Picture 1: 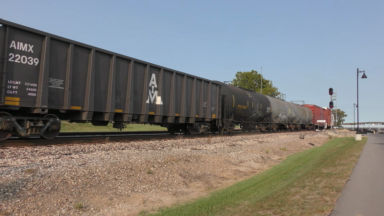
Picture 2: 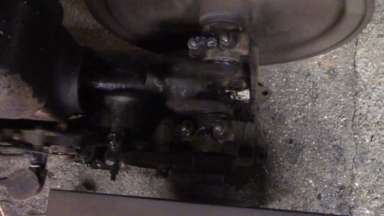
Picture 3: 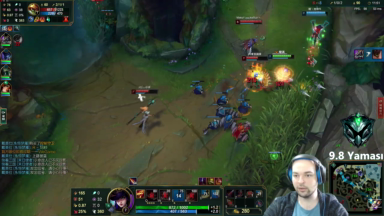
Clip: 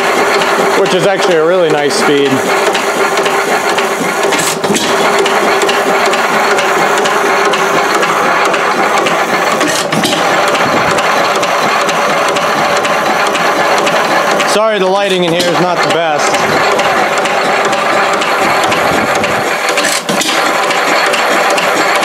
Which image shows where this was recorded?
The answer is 2